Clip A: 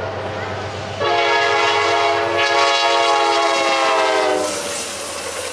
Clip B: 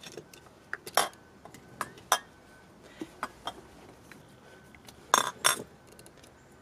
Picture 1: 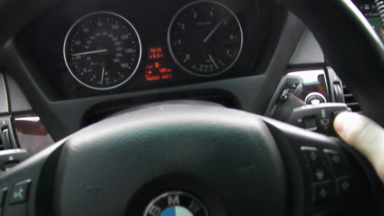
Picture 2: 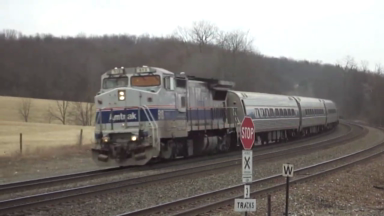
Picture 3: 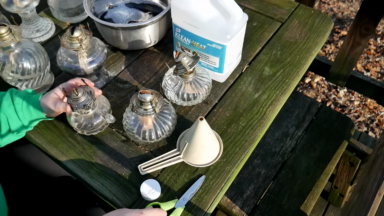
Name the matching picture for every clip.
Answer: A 2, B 3